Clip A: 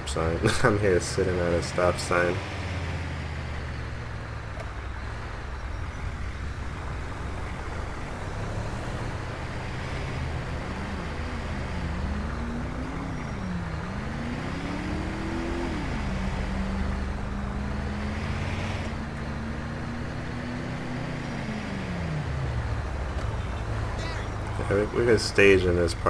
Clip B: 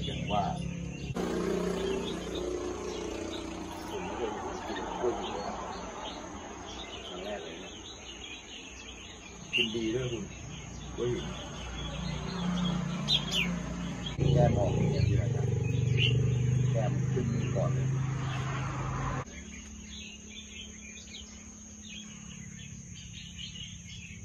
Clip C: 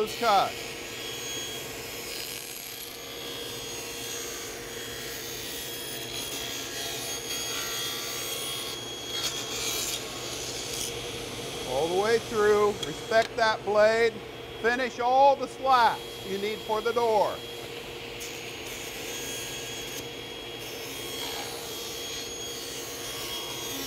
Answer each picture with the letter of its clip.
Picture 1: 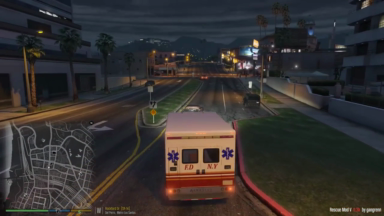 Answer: A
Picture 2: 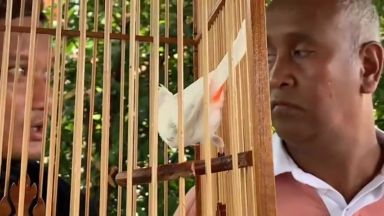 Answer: B